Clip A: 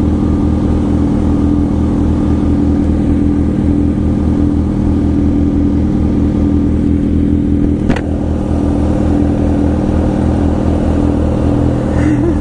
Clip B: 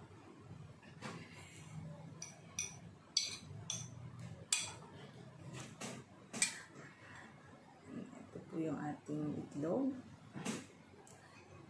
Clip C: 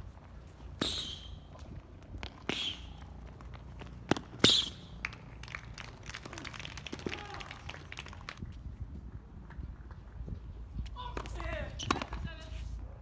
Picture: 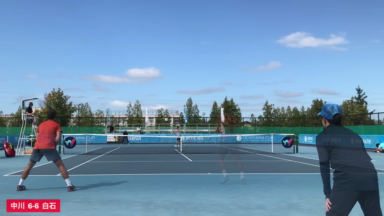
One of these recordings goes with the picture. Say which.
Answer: C